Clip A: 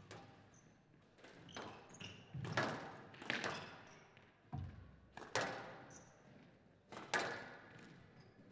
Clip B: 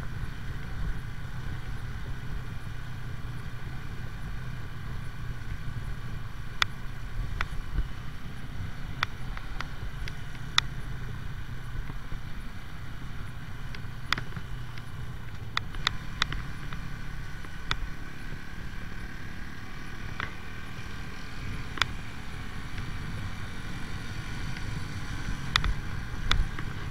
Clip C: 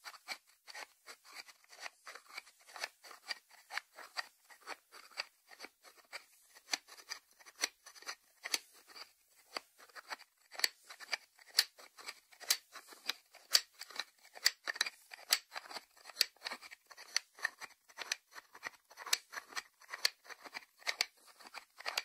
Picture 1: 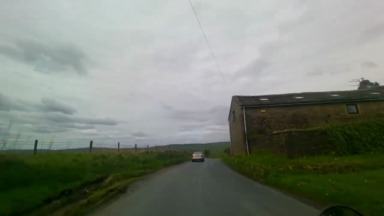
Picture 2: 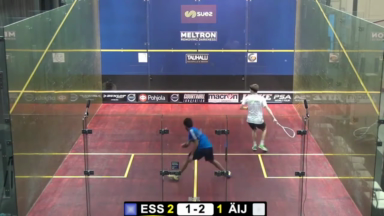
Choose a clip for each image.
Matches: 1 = B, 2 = A